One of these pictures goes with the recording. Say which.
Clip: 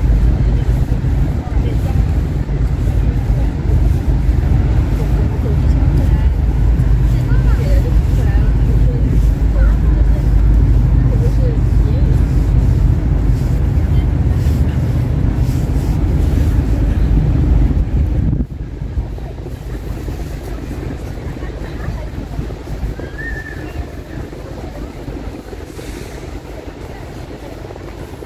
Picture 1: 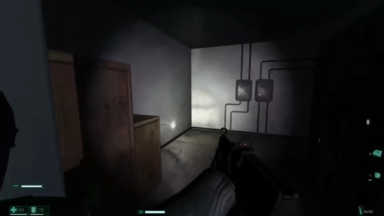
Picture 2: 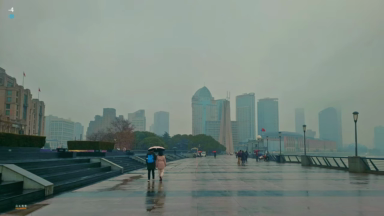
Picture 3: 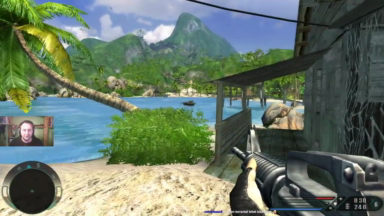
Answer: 2